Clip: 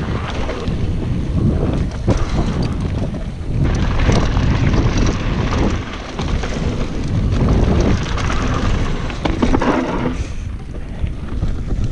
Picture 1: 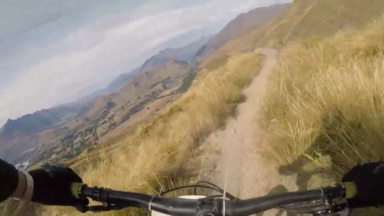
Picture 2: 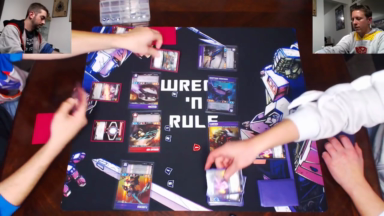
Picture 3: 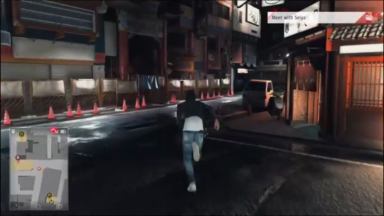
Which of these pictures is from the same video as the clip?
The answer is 1